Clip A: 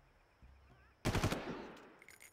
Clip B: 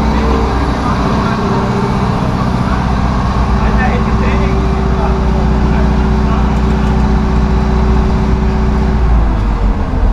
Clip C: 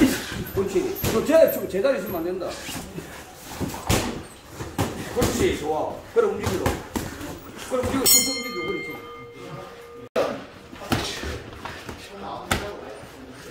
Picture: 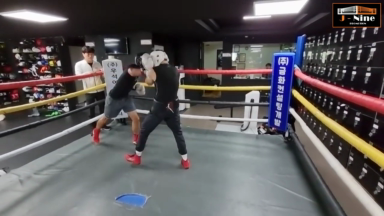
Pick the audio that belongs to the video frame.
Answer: C